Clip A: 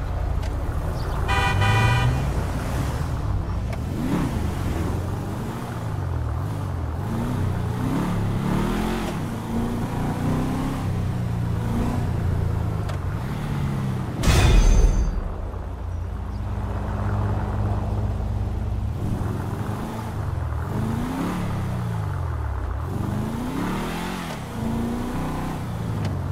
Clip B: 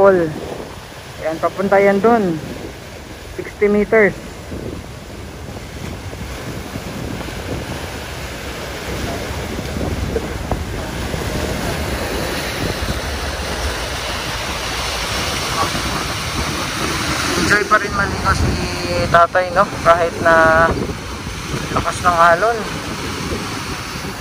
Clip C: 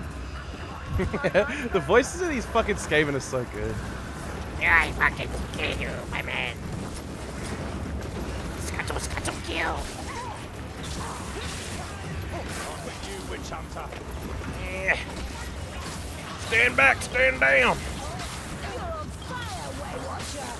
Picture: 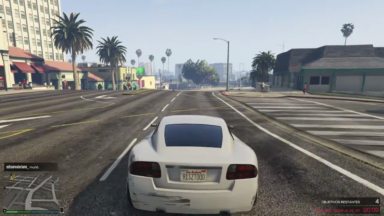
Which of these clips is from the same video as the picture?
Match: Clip A